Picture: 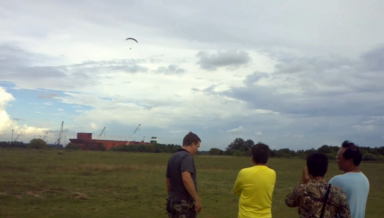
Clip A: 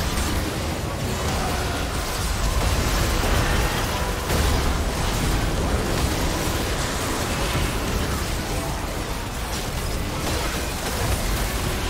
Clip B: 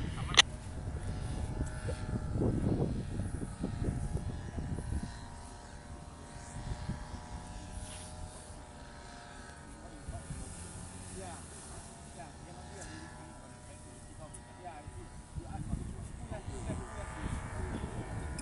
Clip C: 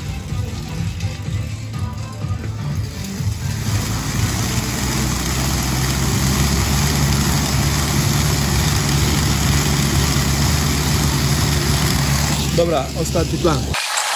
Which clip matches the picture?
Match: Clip B